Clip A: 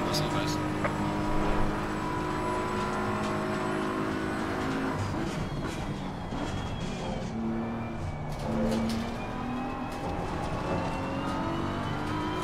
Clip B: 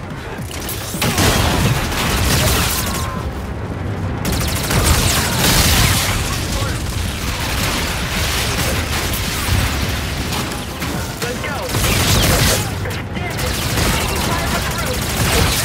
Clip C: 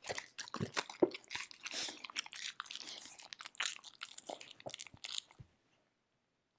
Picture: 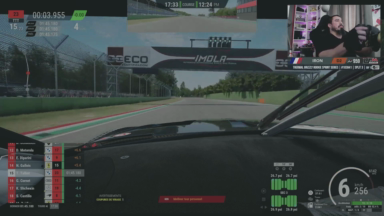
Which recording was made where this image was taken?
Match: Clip A